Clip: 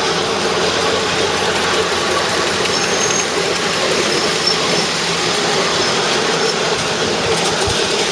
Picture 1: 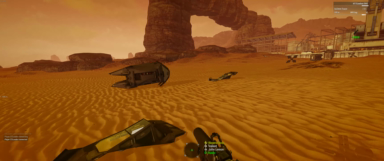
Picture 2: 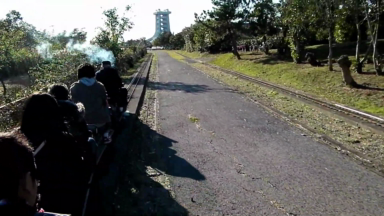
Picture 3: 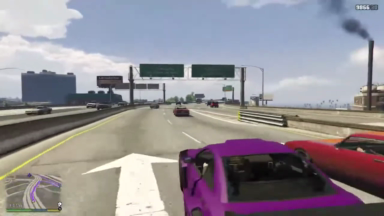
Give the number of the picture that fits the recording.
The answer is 2